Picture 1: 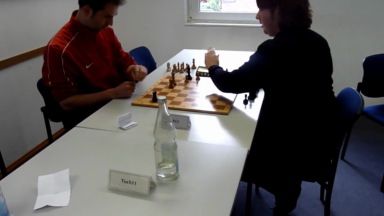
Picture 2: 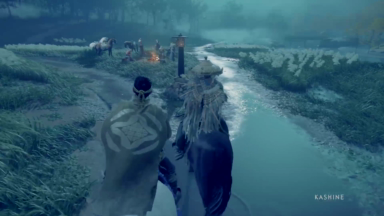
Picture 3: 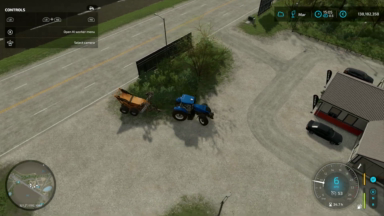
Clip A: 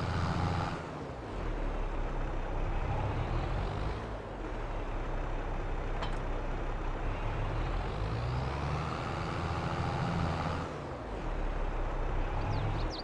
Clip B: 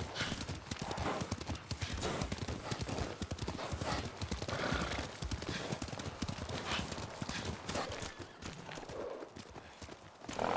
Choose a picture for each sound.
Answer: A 3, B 2